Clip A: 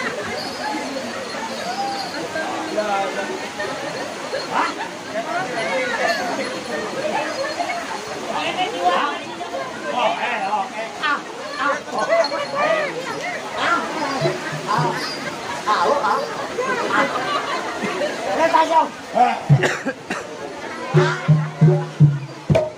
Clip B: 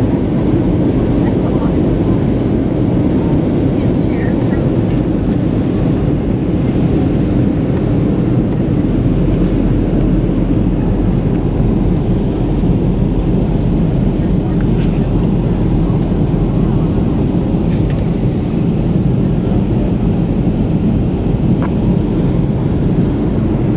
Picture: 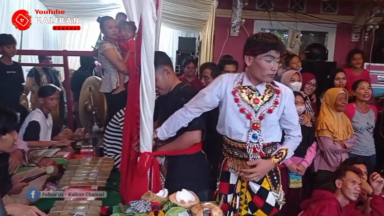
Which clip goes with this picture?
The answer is A